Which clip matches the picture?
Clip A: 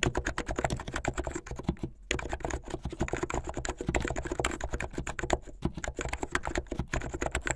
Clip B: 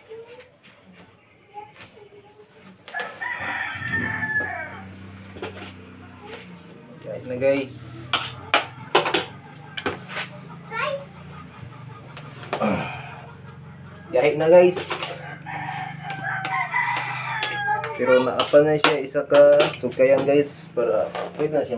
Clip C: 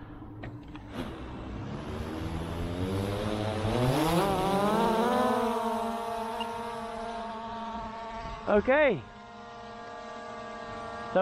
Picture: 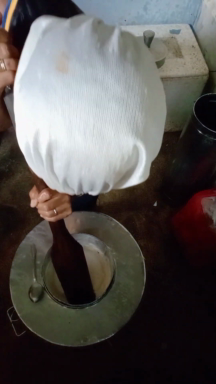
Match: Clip B